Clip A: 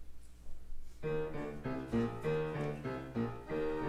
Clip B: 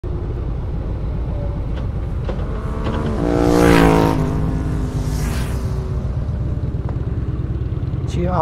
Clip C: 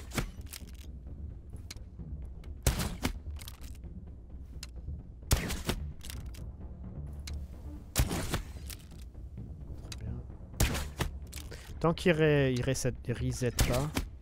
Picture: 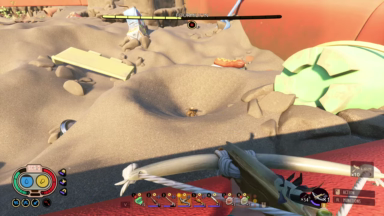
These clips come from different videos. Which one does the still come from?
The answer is C